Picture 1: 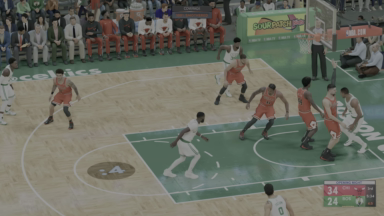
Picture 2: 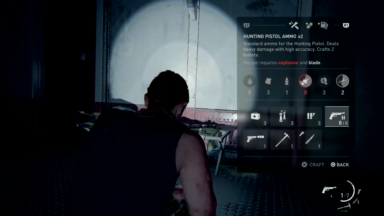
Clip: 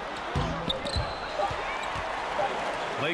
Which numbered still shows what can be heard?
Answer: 1